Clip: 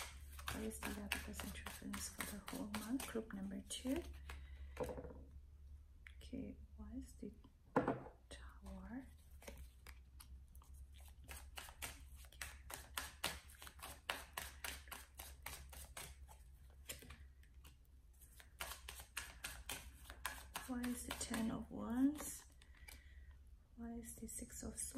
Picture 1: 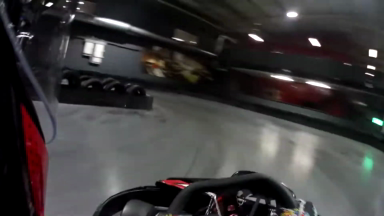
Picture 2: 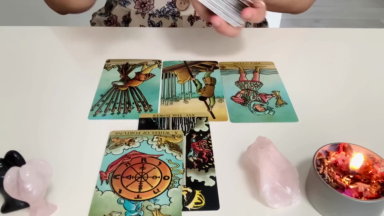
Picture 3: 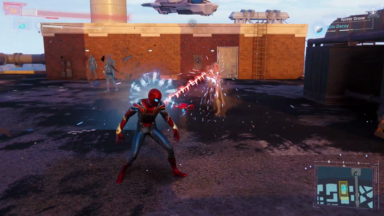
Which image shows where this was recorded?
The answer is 2